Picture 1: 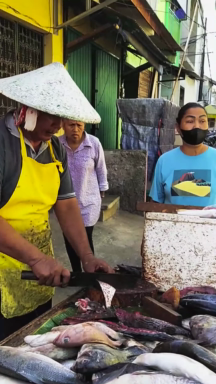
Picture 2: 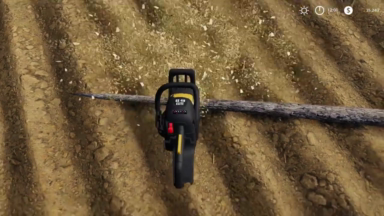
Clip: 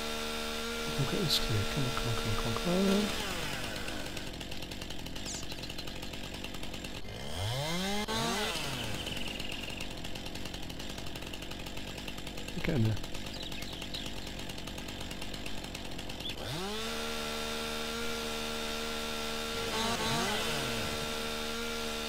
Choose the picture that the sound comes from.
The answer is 2